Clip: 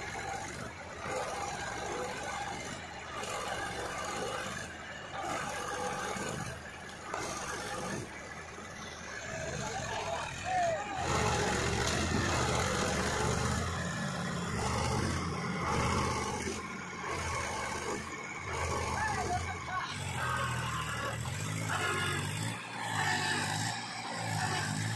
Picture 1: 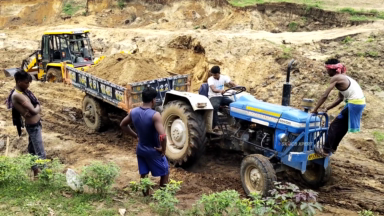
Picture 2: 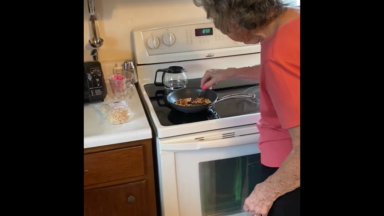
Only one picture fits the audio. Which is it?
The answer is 1